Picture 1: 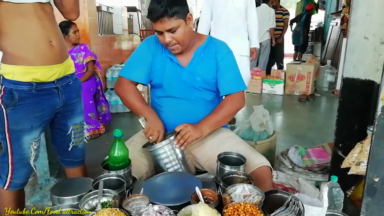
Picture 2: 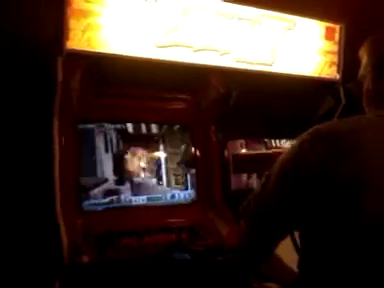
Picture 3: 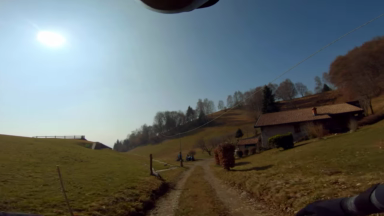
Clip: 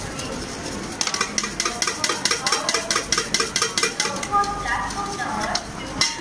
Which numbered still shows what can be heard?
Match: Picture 1